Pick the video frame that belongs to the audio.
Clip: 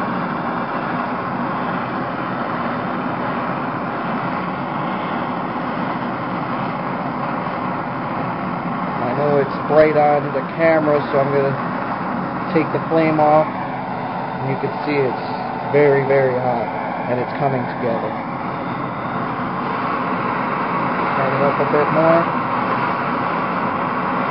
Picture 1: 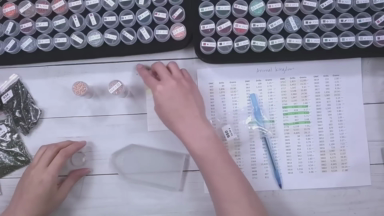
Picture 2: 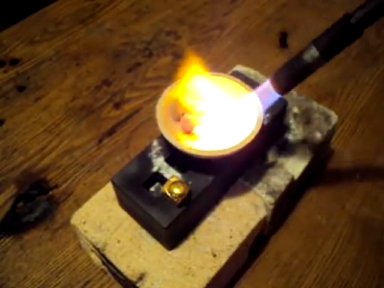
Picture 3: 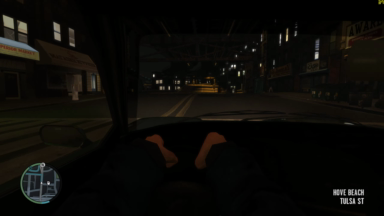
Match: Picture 2